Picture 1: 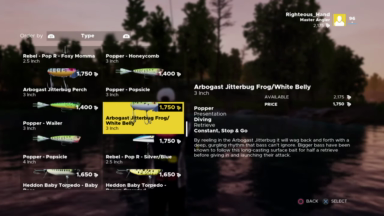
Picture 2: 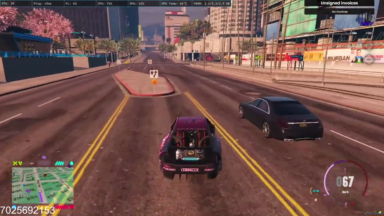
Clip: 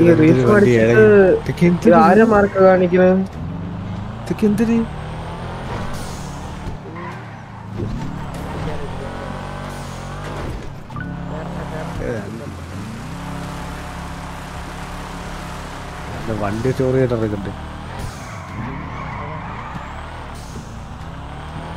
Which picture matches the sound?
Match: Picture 2